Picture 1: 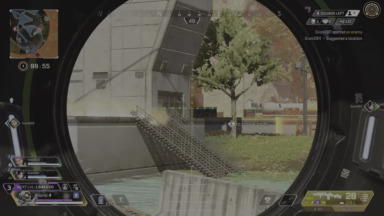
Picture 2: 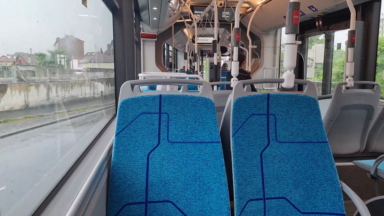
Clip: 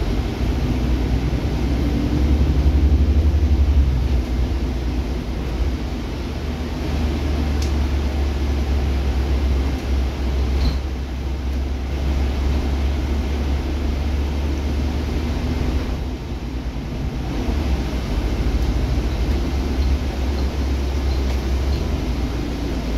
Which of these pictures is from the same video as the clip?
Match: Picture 2